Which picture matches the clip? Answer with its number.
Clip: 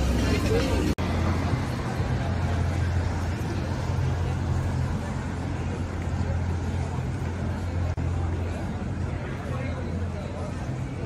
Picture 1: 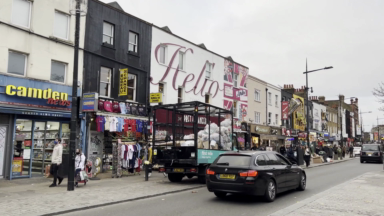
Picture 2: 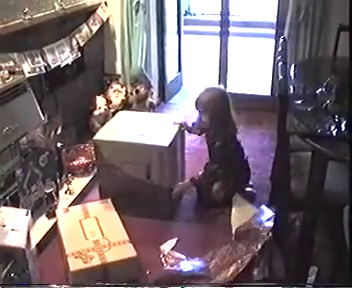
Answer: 1